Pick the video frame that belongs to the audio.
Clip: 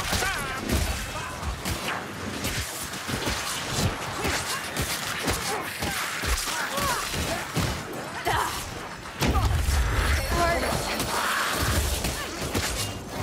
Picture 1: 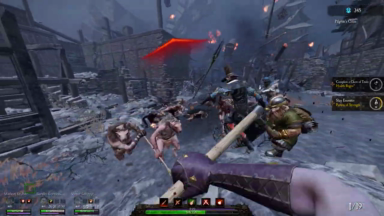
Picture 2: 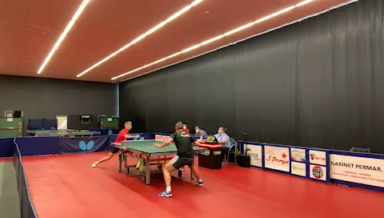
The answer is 1